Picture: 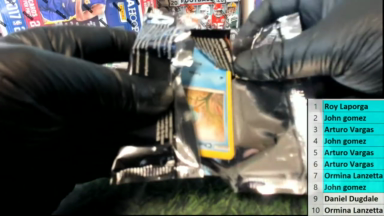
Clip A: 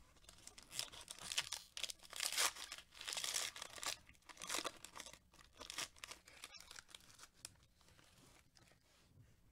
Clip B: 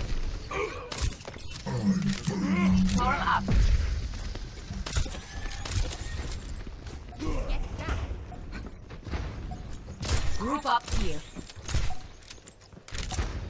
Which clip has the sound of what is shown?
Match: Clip A